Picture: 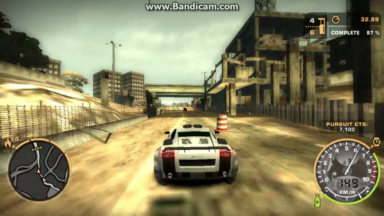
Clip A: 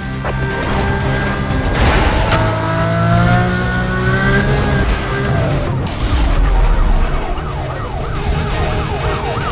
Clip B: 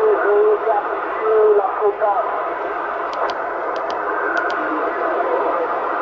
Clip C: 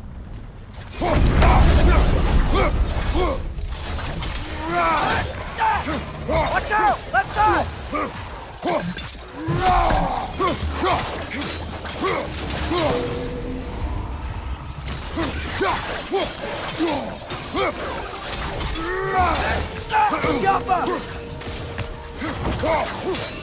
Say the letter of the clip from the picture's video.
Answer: A